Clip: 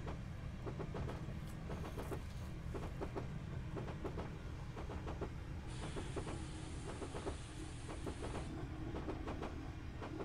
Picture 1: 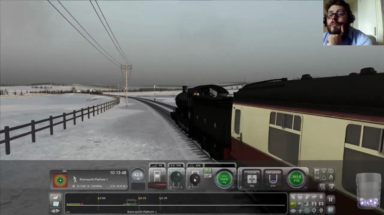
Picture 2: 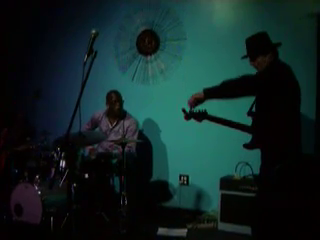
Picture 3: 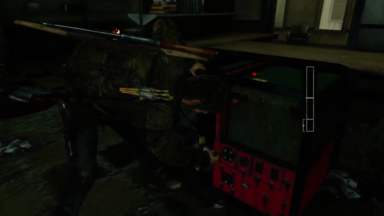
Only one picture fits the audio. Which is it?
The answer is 1